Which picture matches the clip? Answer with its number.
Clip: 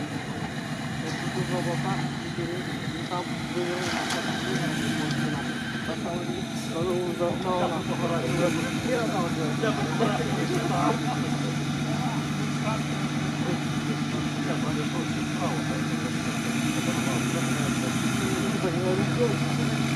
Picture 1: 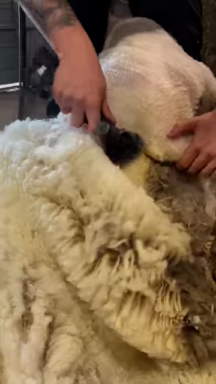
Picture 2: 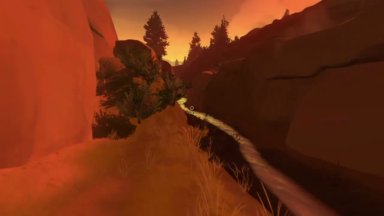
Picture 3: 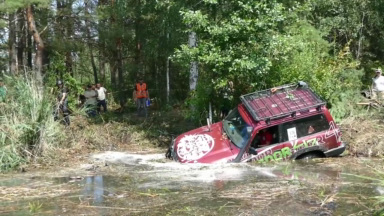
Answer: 3